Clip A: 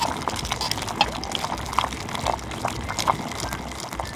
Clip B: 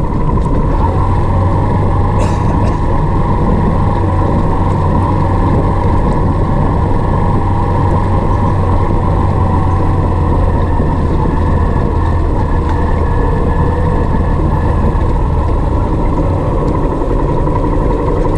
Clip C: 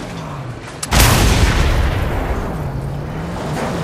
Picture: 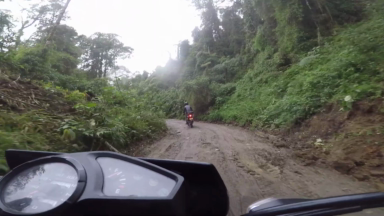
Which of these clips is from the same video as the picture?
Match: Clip B